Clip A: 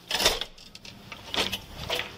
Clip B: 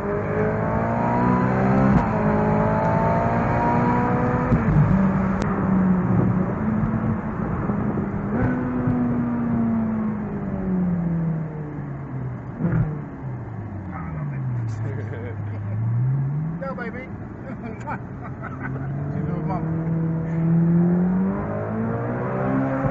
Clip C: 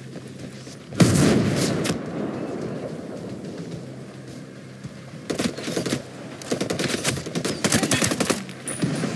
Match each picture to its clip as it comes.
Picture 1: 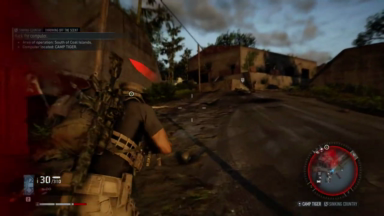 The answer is C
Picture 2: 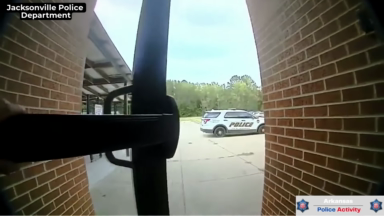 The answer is A